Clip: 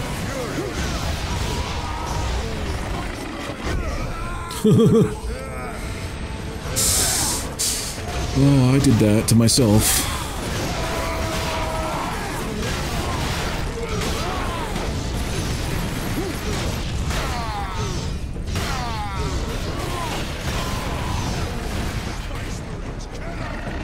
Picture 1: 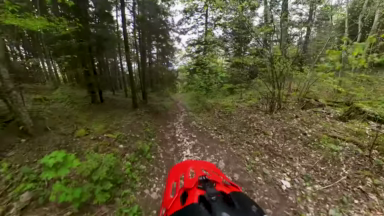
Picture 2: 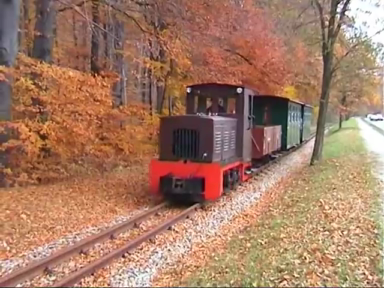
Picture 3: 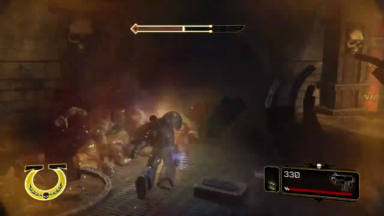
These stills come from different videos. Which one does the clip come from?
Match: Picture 3